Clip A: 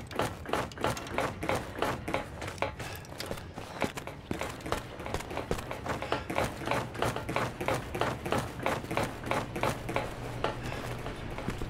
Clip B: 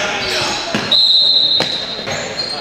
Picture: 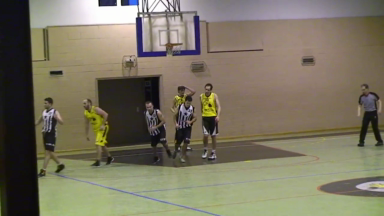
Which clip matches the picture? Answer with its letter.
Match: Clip B